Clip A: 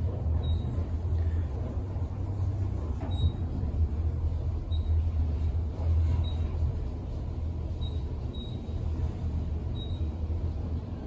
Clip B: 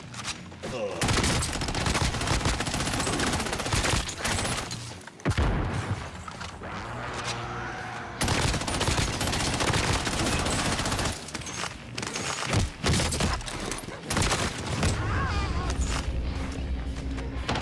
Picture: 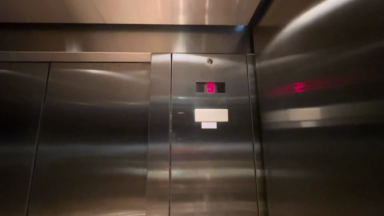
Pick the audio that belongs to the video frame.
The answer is A